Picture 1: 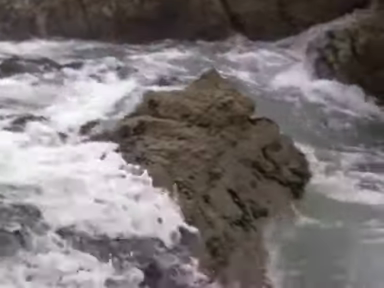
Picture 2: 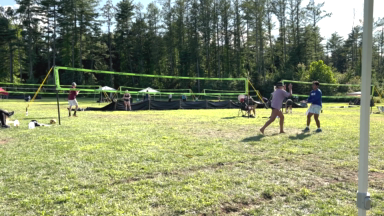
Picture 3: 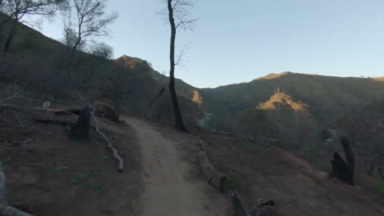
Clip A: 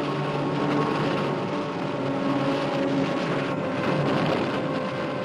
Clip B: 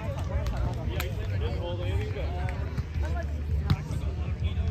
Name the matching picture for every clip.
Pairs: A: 1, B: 2